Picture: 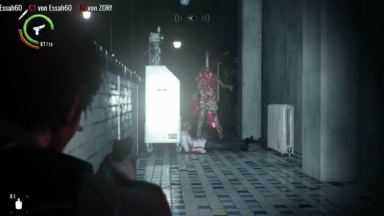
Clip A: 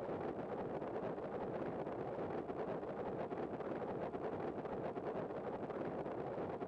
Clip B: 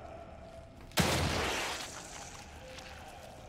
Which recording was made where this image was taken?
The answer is B